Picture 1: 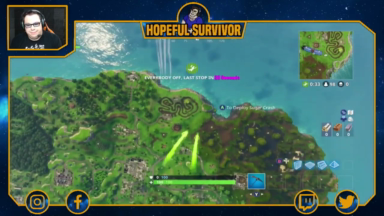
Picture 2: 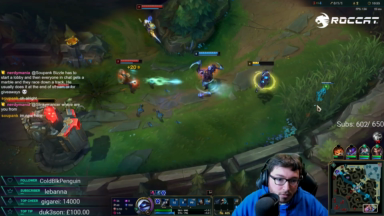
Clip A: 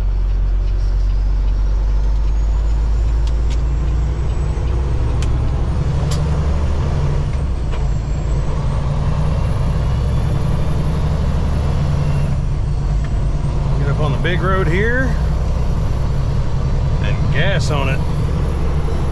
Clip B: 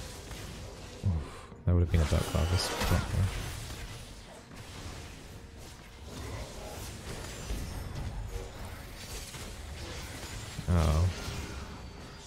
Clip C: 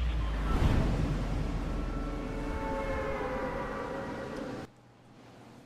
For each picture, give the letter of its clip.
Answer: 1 C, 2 B